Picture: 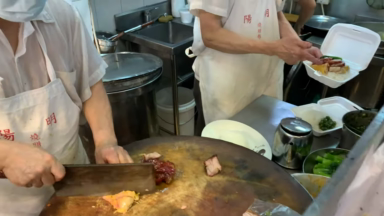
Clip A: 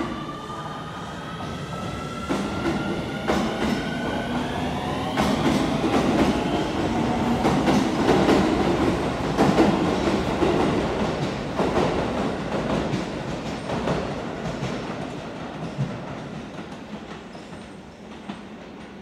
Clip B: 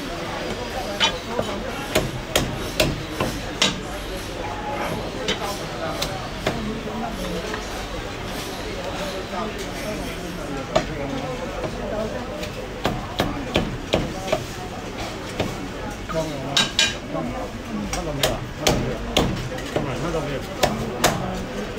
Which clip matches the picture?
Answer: B